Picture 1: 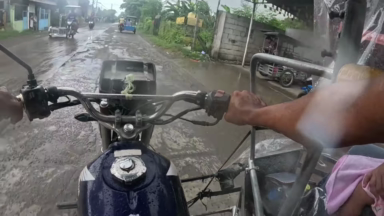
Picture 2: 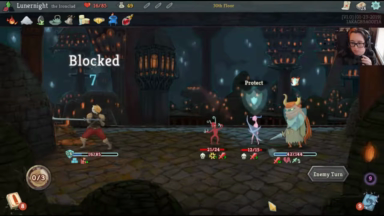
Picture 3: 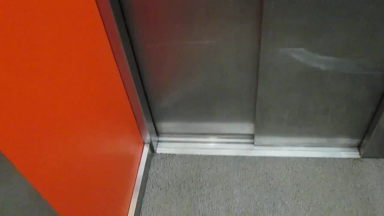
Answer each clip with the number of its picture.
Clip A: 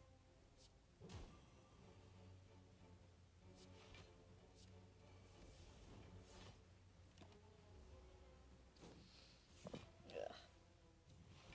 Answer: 2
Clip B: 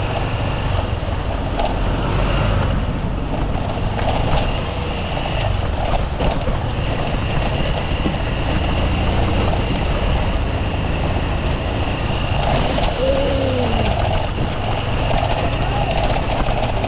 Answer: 1